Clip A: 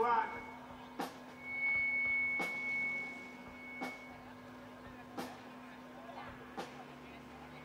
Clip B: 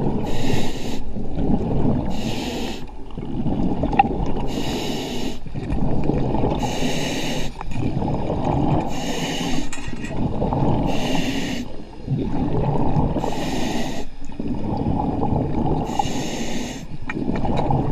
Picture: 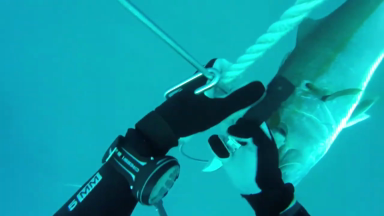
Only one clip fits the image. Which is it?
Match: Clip B